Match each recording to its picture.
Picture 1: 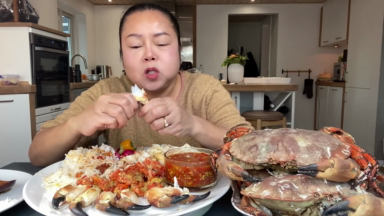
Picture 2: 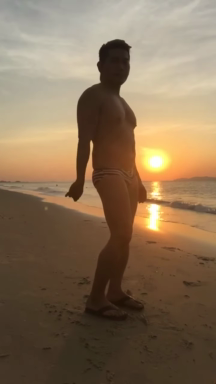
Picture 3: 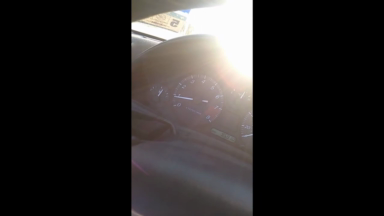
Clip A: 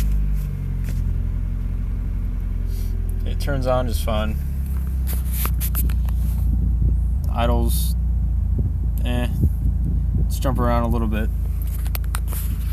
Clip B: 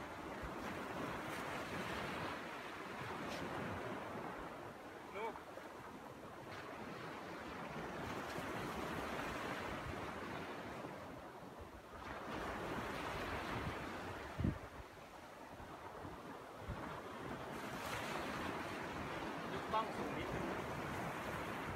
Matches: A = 3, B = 2